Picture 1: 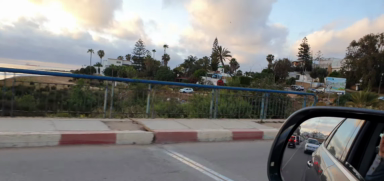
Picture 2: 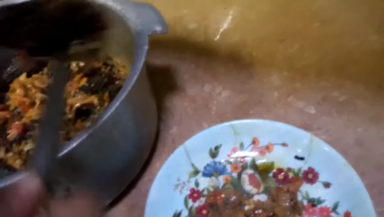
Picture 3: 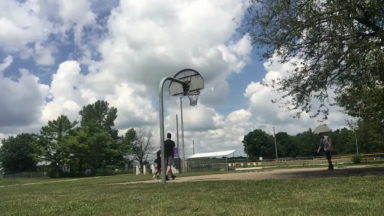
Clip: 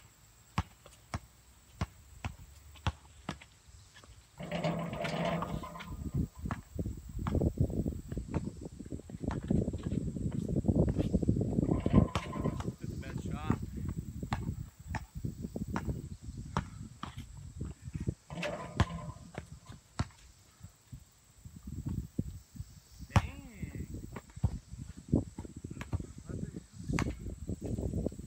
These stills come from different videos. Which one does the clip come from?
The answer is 3